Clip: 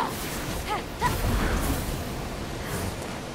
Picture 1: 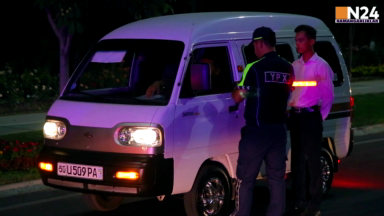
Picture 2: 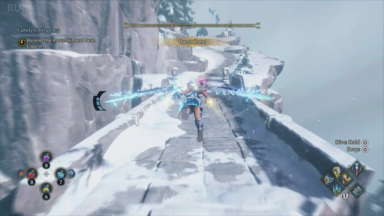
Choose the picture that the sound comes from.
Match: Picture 2